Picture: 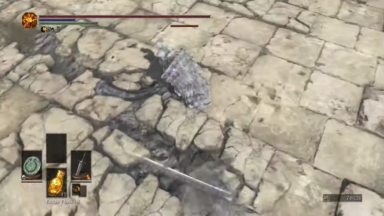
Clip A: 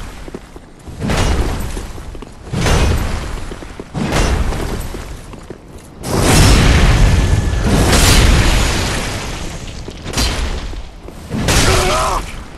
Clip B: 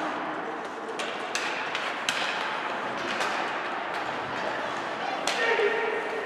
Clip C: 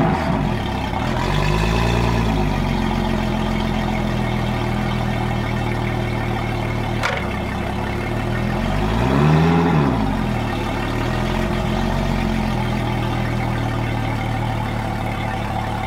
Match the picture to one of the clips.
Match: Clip A